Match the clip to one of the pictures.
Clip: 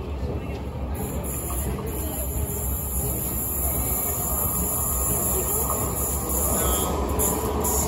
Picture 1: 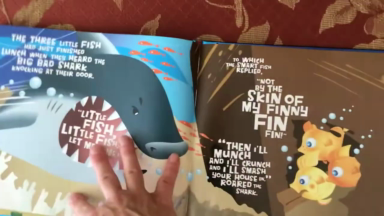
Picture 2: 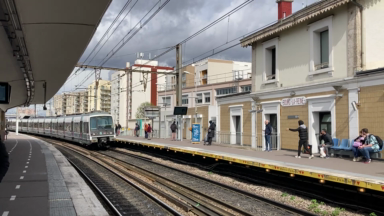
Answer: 2